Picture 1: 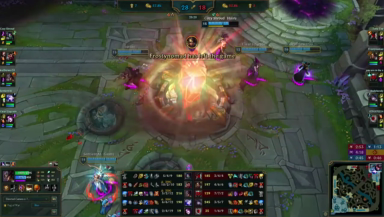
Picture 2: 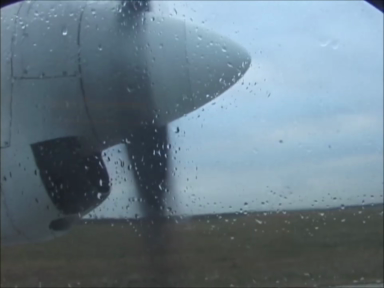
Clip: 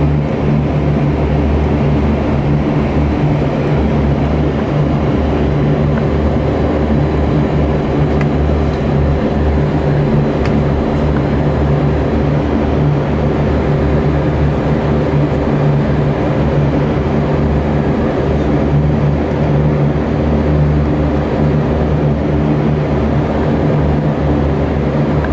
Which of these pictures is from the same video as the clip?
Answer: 2